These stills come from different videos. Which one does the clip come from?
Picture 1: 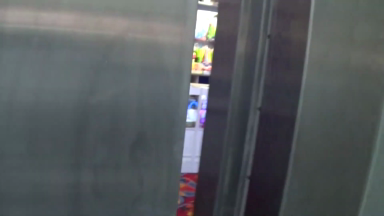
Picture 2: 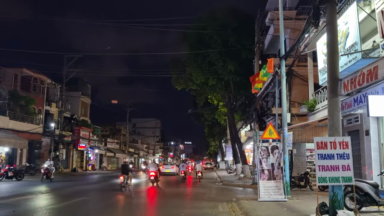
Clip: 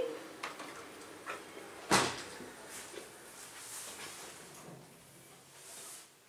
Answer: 1